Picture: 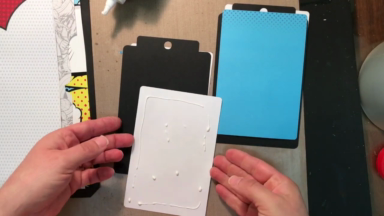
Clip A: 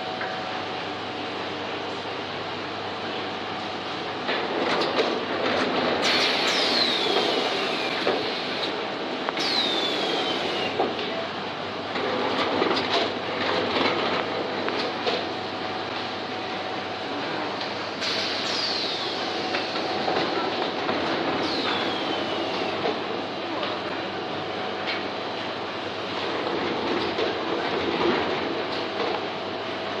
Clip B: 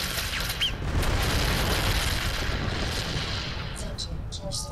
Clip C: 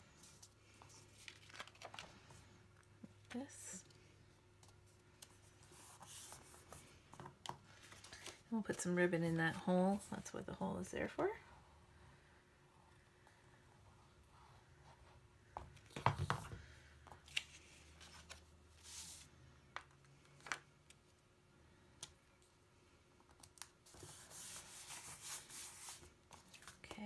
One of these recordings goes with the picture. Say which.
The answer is C